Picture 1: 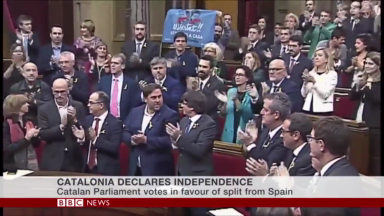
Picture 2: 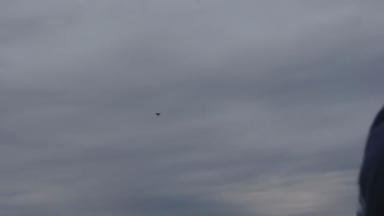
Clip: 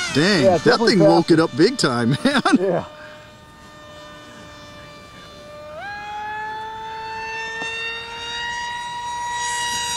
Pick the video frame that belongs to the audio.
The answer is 2